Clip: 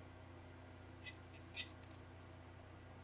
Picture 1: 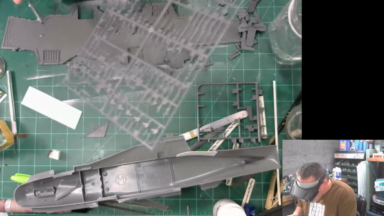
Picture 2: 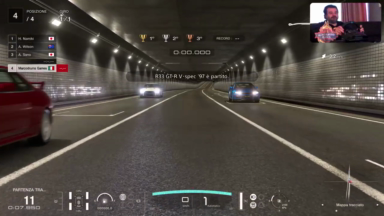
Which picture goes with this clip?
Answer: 1